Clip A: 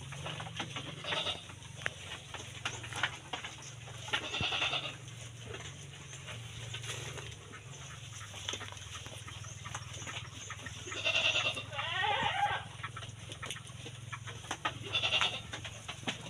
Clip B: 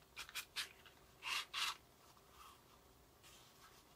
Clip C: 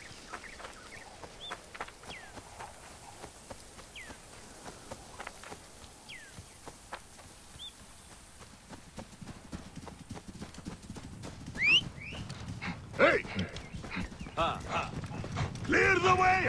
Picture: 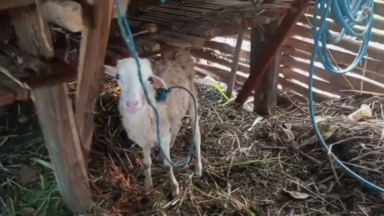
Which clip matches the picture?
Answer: A